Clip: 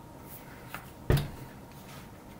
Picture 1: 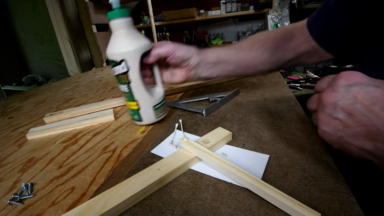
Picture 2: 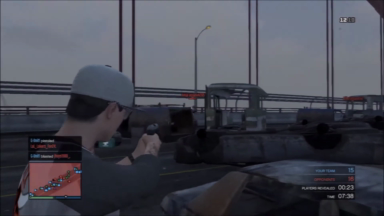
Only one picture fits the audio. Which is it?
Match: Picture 1